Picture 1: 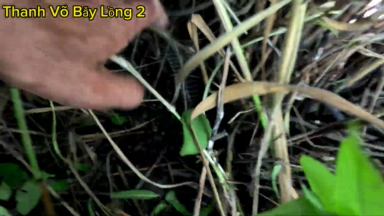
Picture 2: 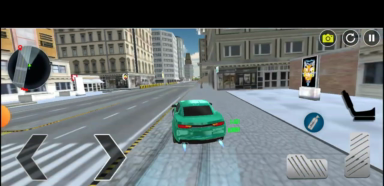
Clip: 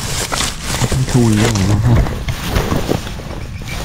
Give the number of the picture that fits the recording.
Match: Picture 1